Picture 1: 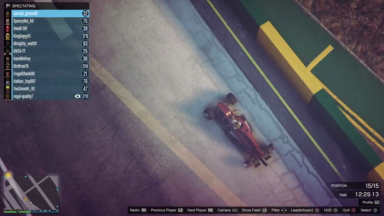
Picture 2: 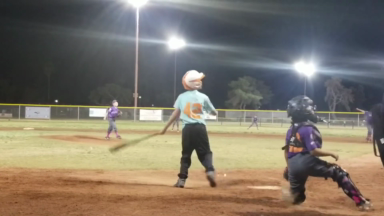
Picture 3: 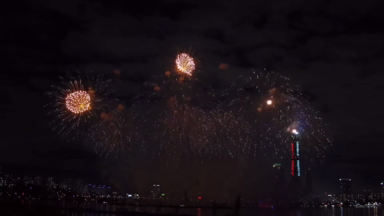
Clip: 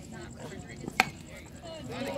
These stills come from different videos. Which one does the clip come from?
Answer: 2